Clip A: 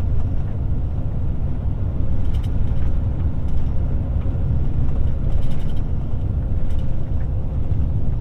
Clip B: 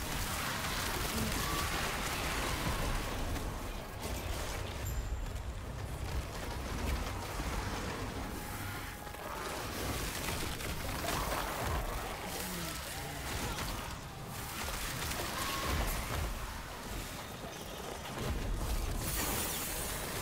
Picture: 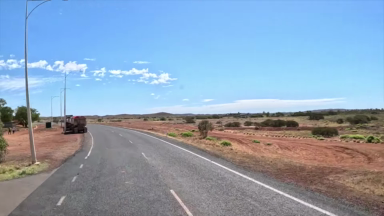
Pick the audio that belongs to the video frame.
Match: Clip A